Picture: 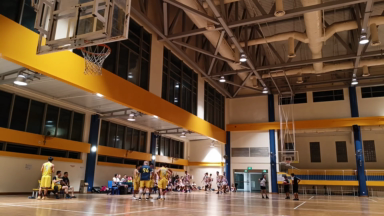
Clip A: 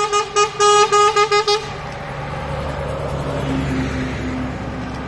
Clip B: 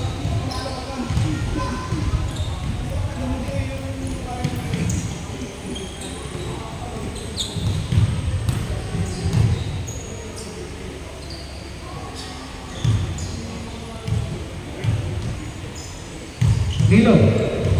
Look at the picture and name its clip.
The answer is B